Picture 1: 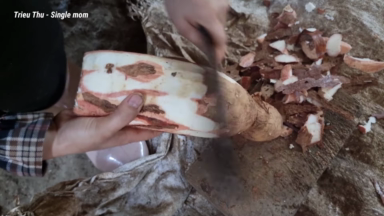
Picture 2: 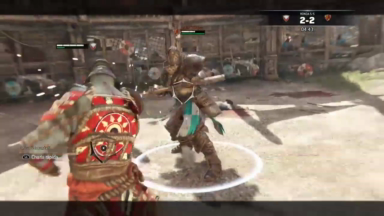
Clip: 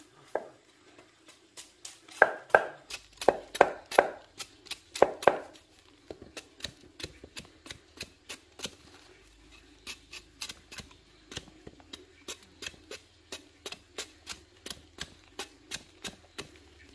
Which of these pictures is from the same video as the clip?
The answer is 1